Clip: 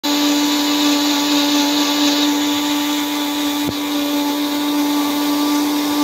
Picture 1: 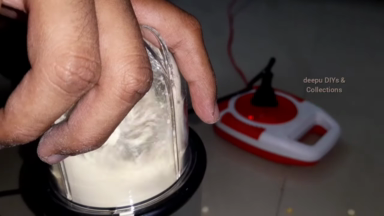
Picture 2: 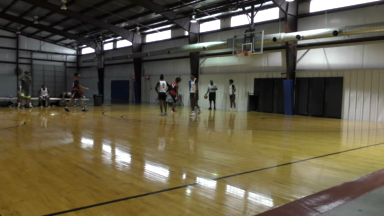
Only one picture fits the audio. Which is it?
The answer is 1